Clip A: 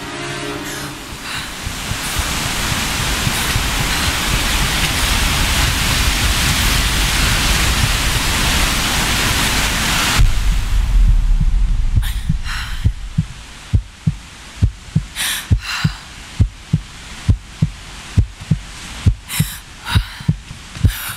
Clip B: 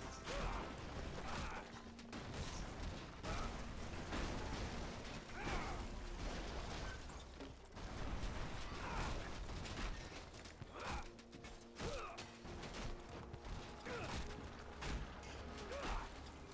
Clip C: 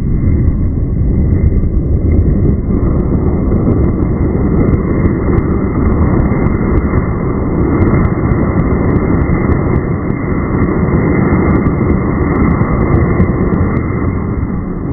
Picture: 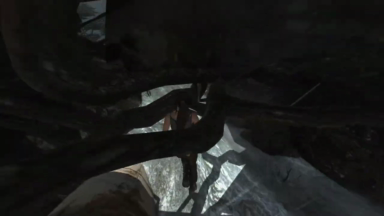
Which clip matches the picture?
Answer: A